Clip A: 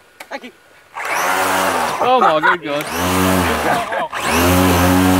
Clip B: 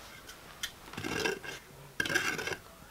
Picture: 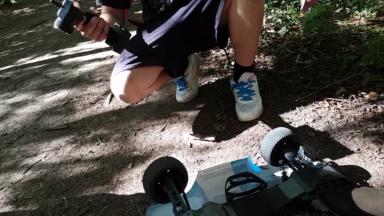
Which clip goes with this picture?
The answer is A